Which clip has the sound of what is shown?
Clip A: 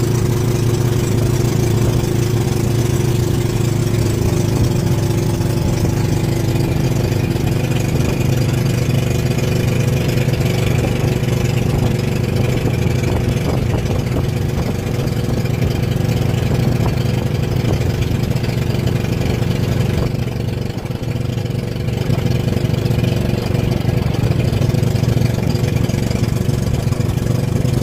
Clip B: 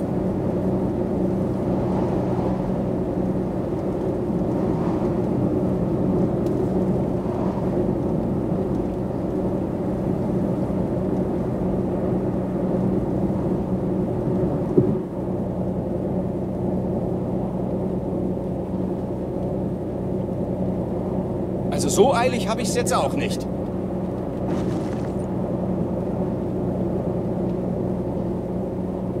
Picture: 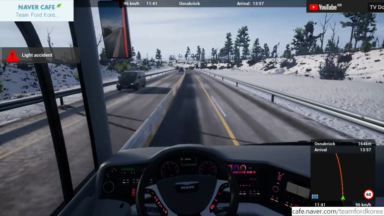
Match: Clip B